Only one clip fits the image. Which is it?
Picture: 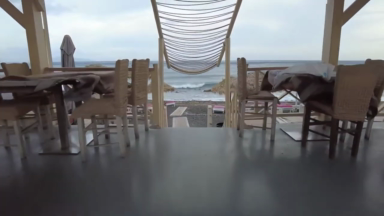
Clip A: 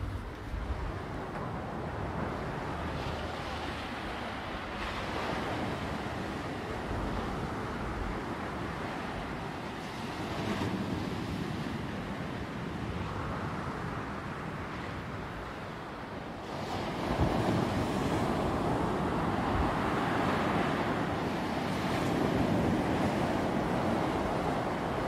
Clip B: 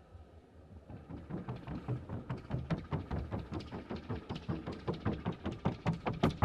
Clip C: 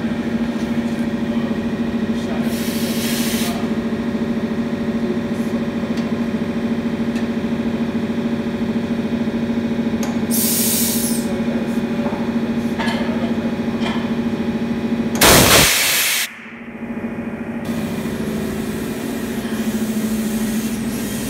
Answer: A